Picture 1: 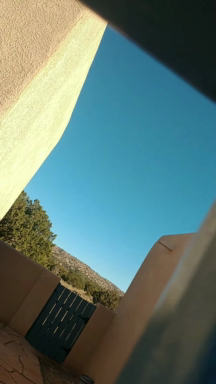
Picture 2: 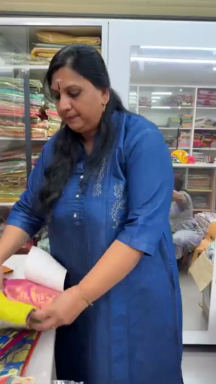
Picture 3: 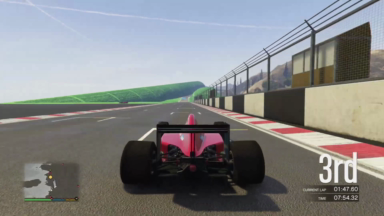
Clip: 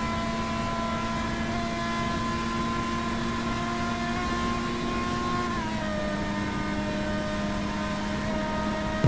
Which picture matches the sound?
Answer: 3